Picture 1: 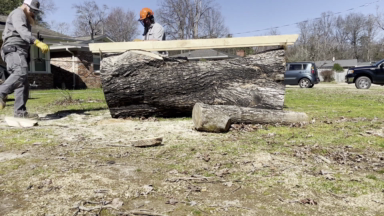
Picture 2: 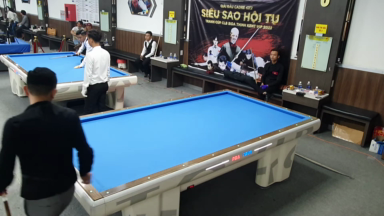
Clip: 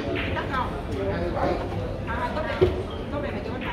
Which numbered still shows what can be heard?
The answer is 2